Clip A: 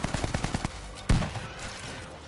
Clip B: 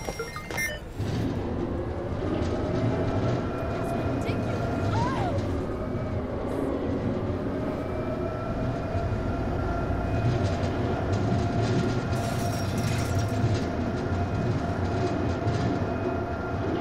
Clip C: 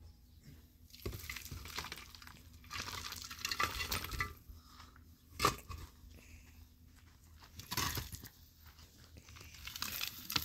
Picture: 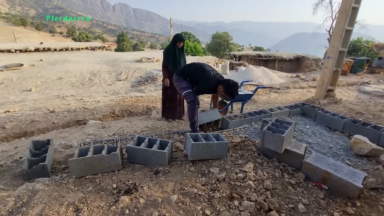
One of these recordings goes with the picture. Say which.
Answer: C